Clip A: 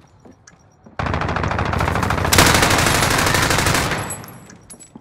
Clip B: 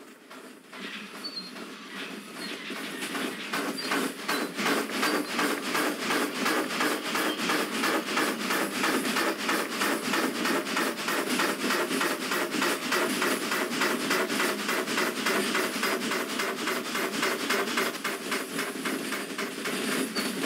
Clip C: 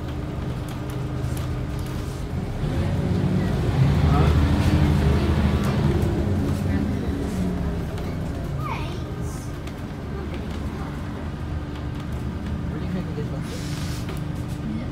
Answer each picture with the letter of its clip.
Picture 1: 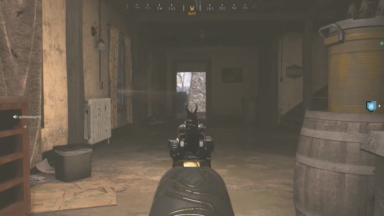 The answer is A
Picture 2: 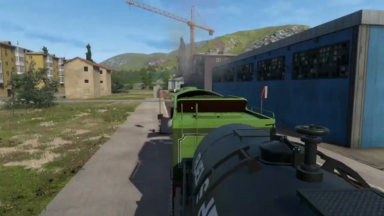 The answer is B